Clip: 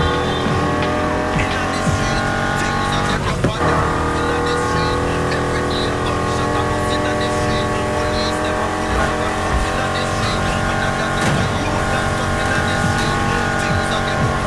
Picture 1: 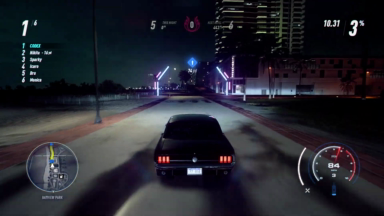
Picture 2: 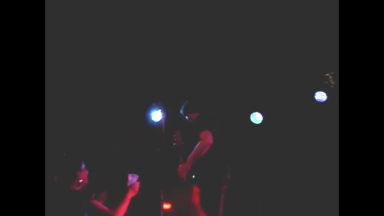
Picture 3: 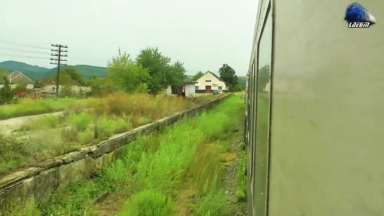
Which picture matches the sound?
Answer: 1